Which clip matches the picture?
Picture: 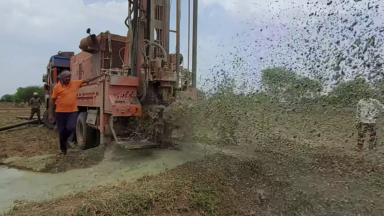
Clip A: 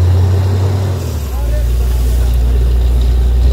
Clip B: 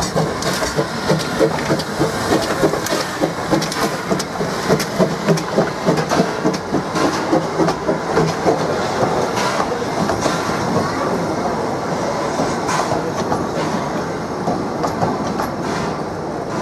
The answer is A